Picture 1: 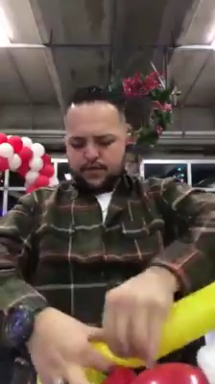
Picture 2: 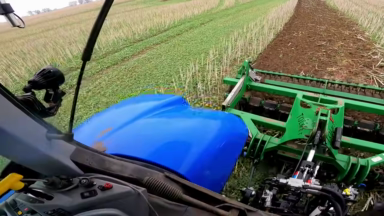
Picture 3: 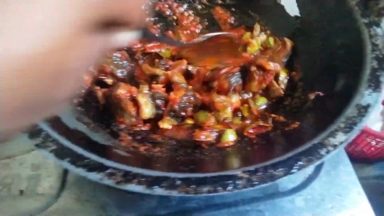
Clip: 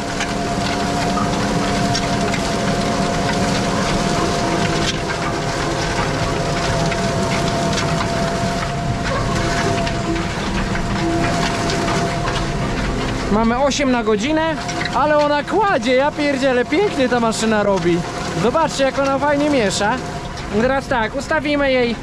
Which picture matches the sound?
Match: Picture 2